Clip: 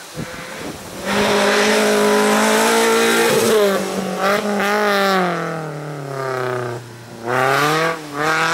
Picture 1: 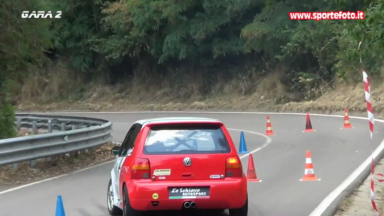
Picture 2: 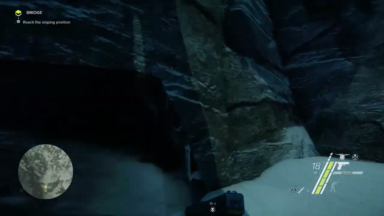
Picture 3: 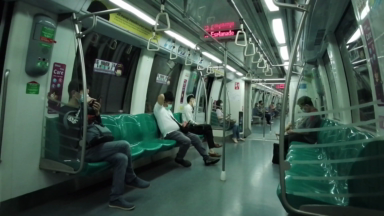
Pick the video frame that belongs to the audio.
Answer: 1